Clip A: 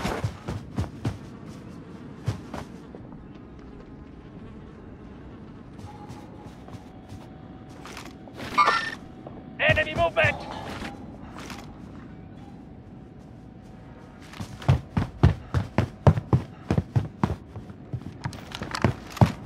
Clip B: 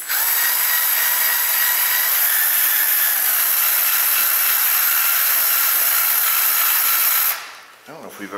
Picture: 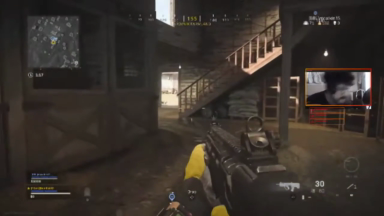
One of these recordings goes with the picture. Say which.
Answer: A